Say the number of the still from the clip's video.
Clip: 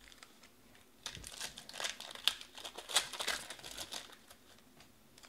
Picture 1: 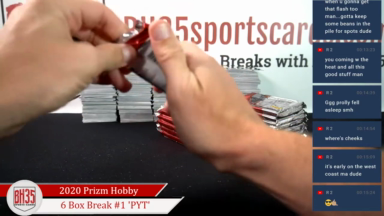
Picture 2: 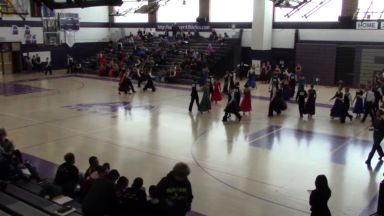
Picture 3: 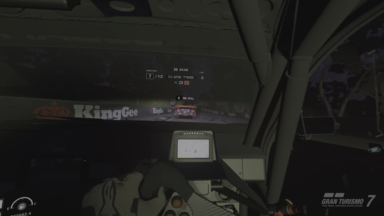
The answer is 1